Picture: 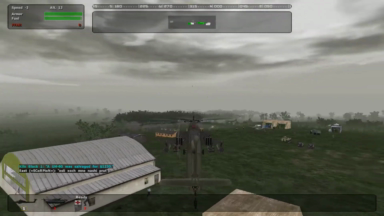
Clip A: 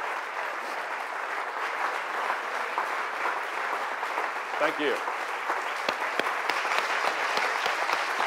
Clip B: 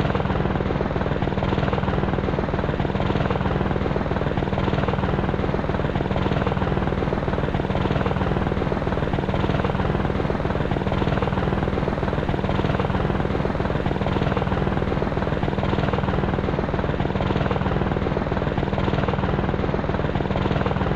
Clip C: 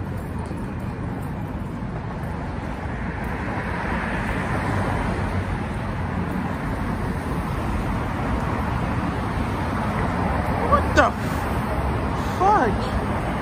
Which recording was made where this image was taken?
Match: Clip B